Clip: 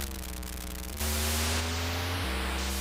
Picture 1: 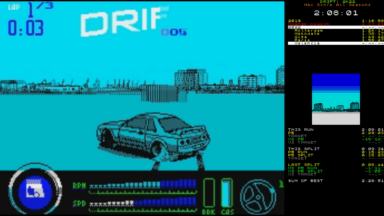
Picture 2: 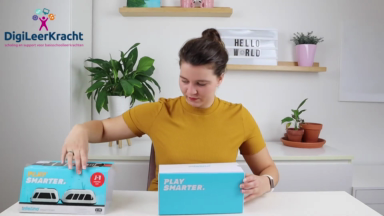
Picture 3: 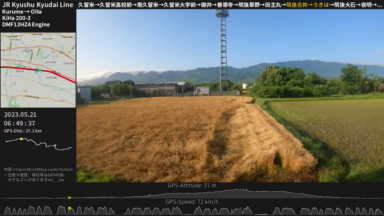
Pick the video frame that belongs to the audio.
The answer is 1